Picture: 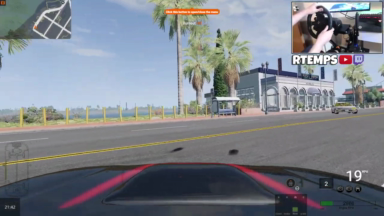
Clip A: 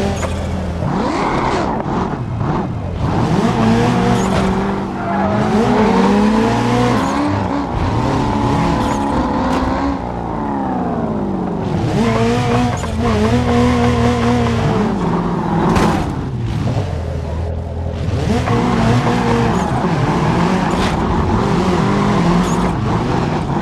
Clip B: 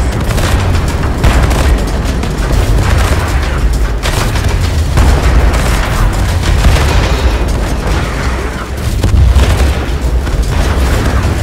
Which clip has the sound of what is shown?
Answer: A